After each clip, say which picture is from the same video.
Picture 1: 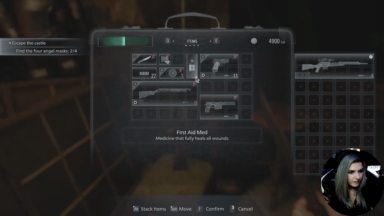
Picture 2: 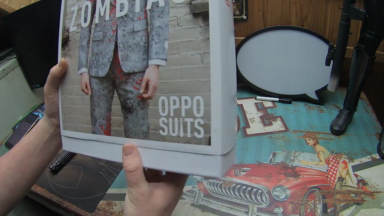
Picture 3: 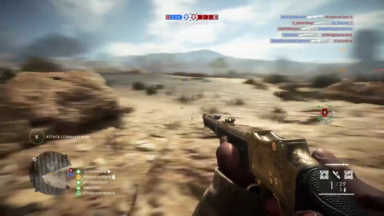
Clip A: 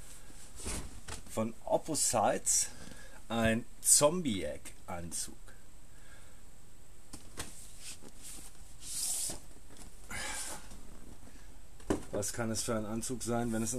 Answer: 2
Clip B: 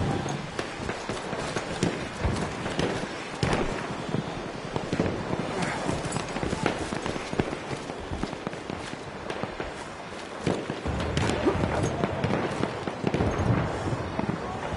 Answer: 3